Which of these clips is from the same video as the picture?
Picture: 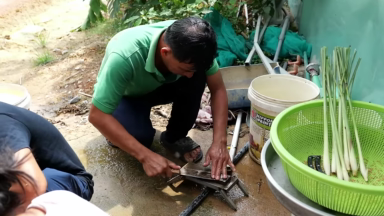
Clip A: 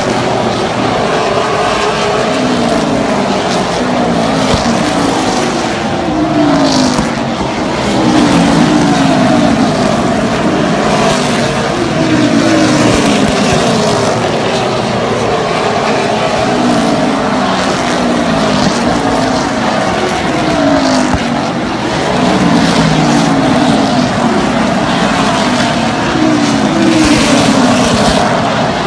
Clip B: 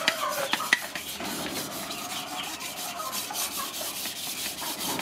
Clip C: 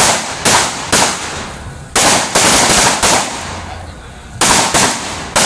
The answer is B